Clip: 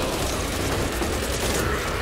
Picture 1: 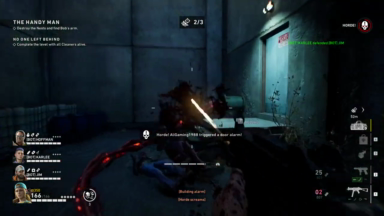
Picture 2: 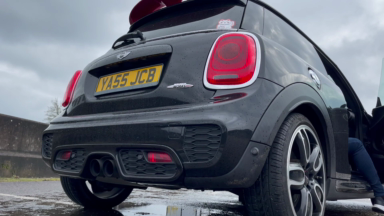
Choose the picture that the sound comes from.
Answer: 1